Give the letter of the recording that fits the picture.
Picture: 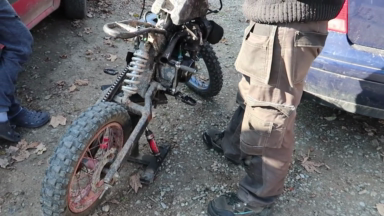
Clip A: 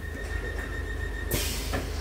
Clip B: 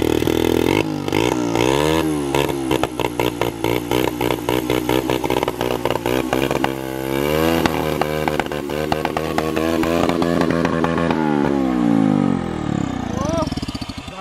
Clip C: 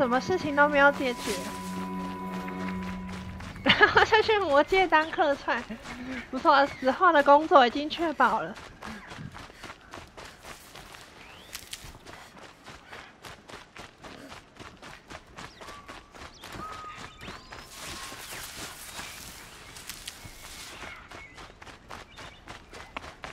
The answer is B